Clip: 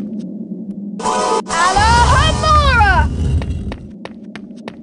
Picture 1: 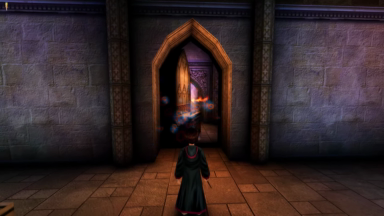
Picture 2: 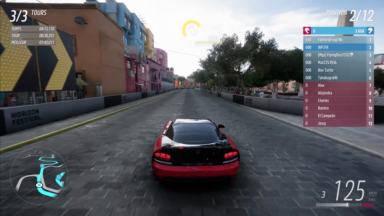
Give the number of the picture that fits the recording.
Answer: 1